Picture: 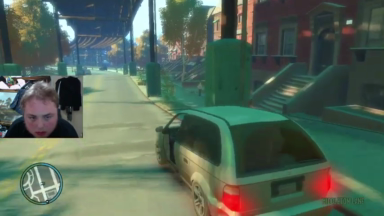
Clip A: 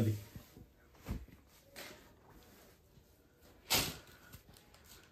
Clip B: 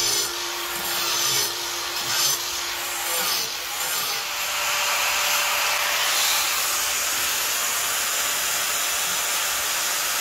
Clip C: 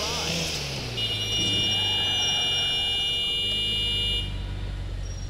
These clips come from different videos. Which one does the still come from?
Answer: C